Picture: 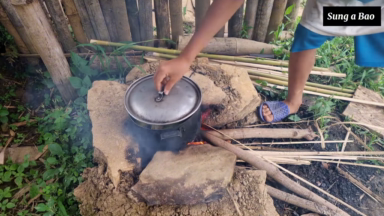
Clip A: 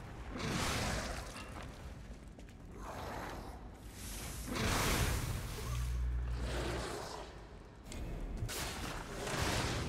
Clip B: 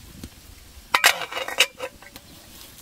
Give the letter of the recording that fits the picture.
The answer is B